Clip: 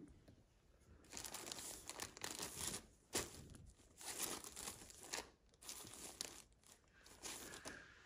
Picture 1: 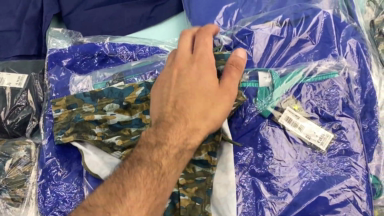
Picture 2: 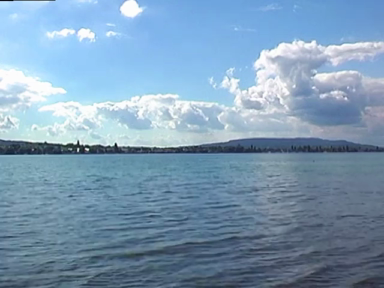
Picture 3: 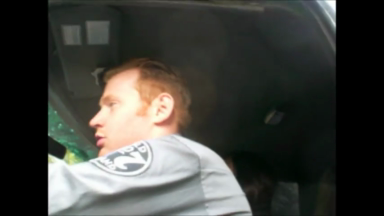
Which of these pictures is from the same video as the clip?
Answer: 1